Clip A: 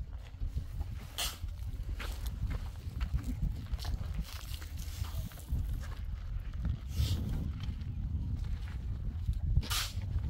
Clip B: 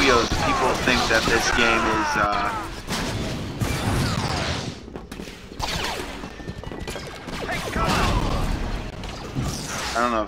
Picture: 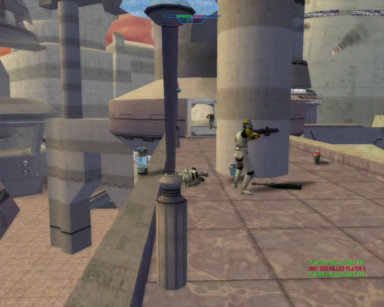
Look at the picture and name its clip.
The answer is B